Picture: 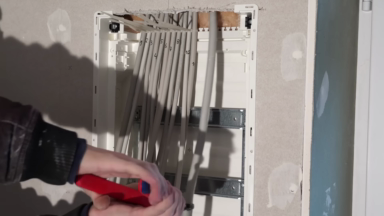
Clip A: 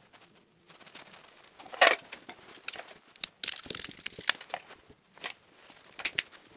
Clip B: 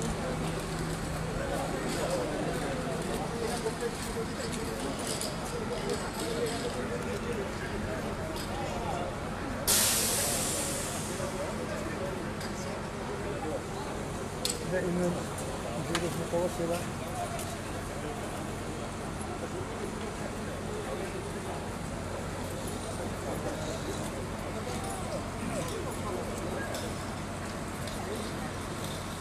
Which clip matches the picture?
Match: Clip A